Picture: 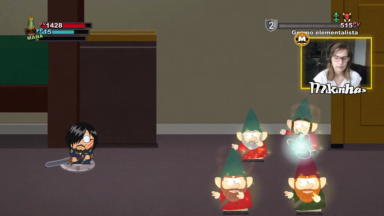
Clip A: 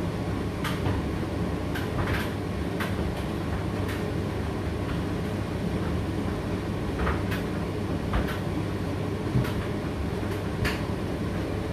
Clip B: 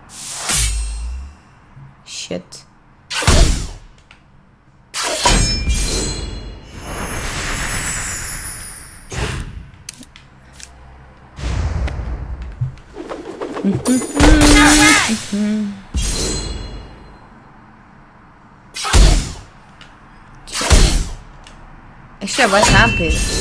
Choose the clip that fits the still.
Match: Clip B